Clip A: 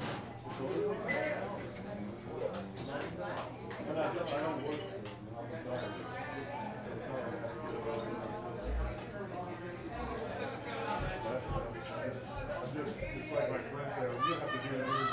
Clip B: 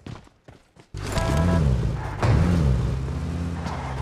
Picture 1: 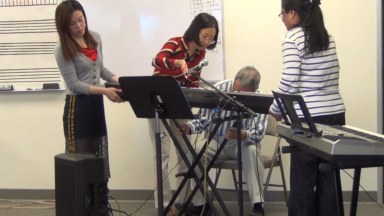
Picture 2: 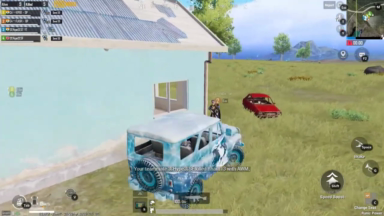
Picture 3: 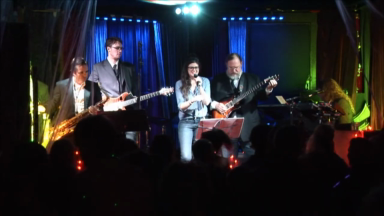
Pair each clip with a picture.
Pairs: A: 3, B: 2